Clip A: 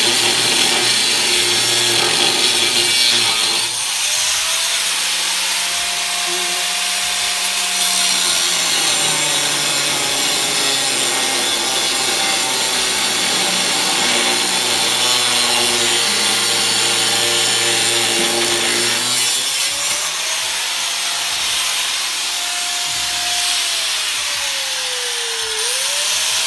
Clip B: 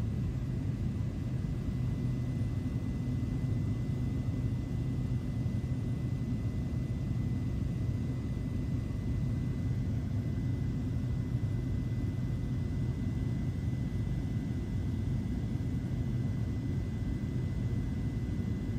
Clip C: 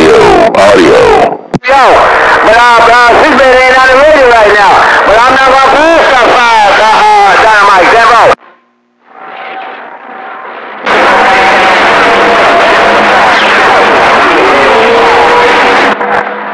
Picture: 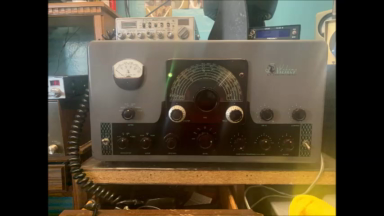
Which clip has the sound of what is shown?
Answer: C